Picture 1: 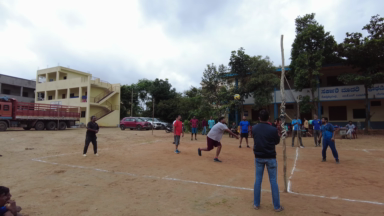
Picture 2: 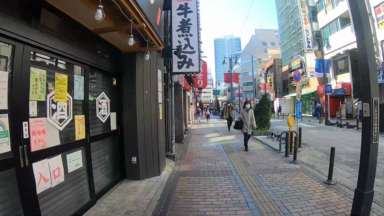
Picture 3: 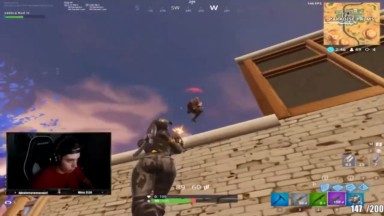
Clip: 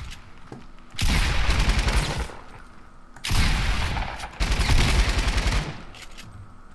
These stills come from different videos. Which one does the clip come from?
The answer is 3